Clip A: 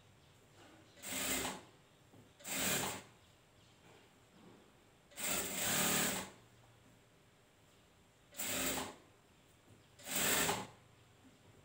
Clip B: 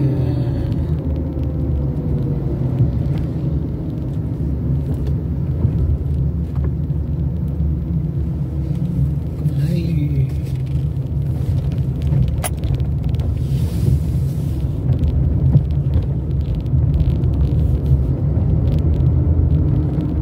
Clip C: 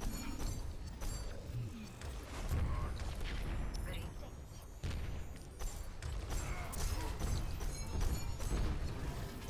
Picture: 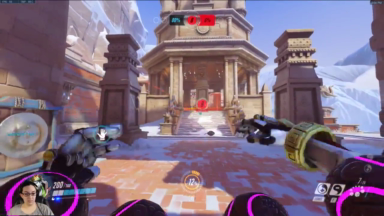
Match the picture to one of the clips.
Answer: C